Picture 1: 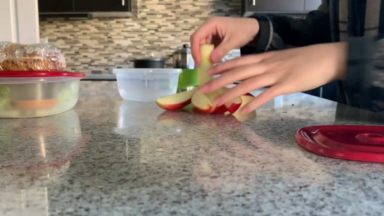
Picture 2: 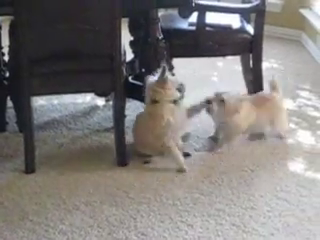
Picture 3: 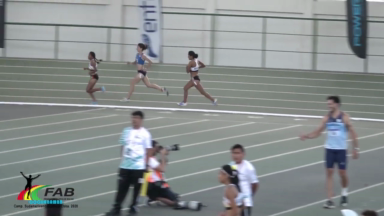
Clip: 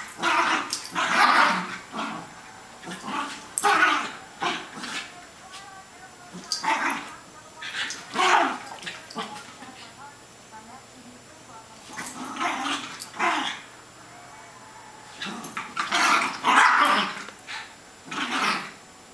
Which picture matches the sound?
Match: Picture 2